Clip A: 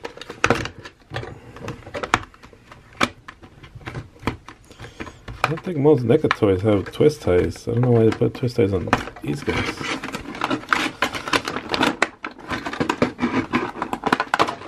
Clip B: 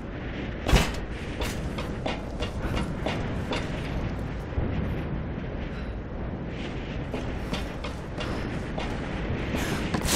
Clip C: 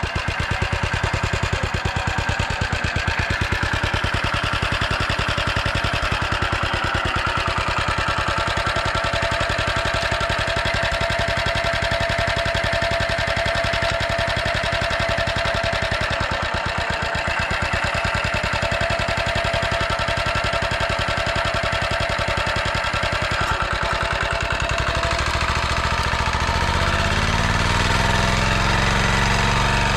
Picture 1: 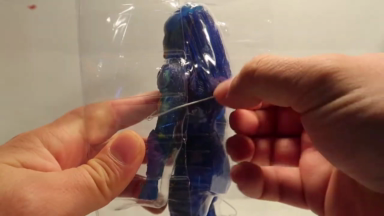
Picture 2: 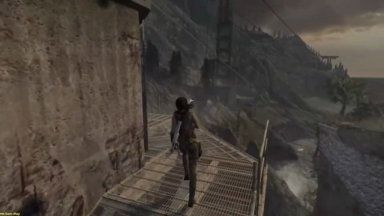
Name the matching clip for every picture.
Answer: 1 A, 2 B